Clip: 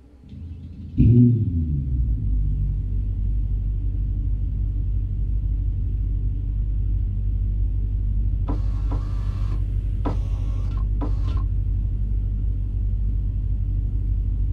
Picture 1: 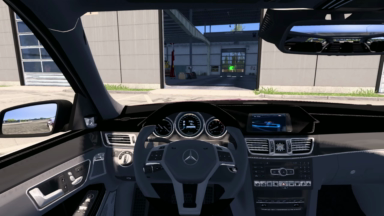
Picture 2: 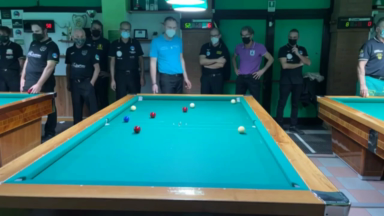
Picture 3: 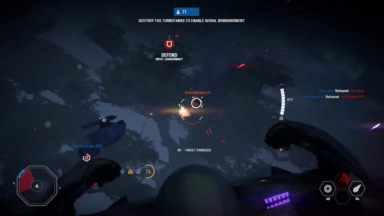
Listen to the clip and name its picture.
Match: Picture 1